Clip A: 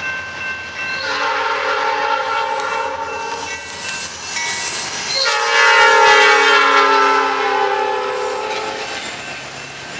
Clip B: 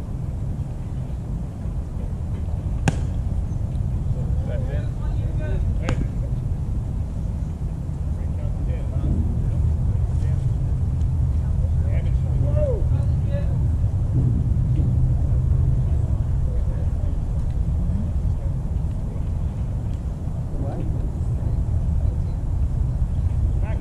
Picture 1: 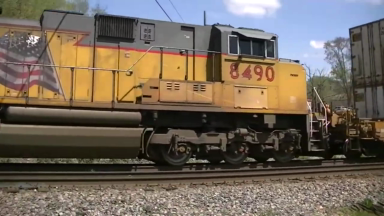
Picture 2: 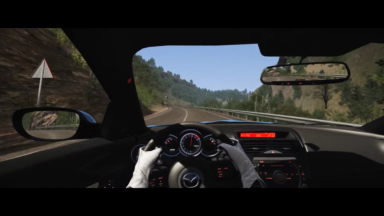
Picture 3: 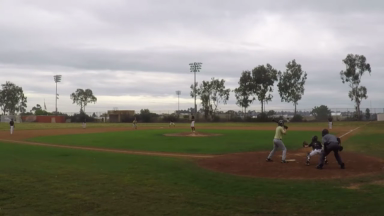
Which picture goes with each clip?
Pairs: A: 1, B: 3